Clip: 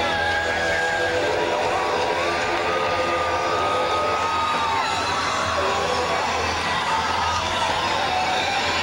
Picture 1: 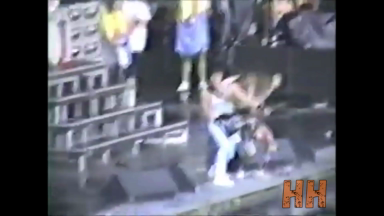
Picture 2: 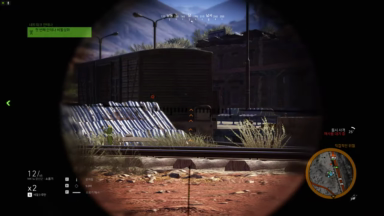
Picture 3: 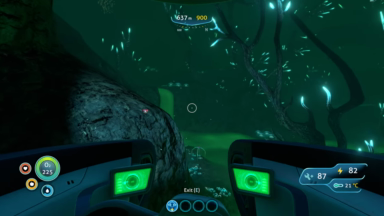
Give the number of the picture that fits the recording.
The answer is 1